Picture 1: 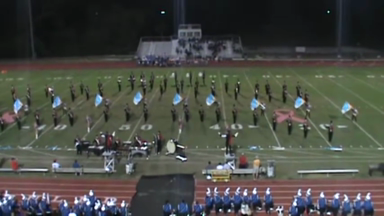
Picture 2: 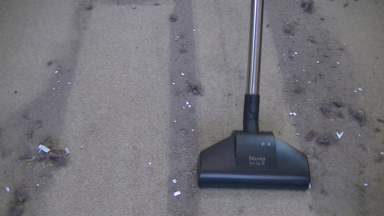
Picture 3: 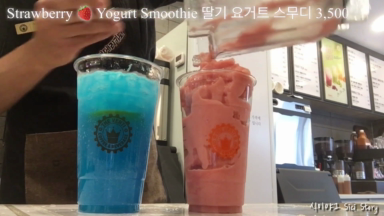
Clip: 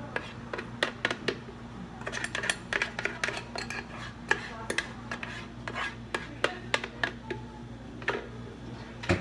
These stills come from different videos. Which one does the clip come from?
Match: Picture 3